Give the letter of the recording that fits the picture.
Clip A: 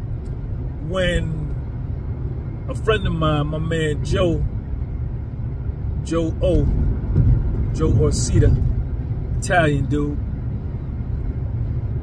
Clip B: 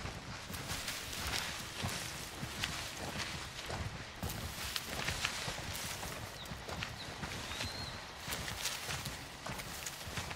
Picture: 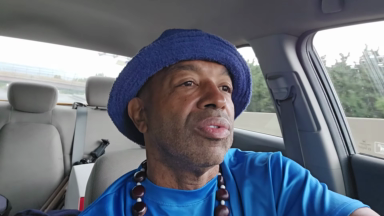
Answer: A